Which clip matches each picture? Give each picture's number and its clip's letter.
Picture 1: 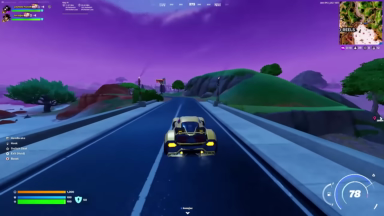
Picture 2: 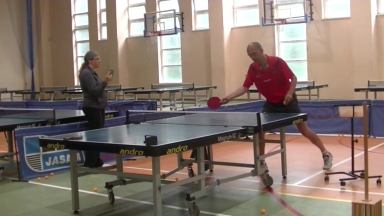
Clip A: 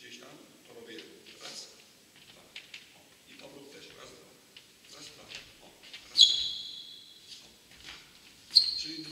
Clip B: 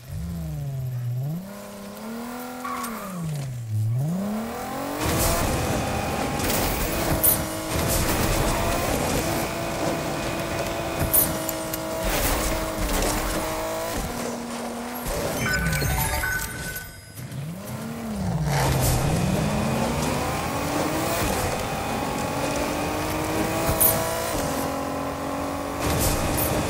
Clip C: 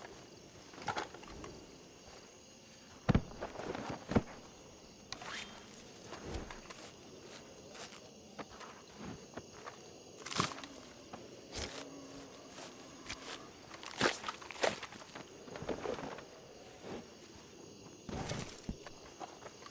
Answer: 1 B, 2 A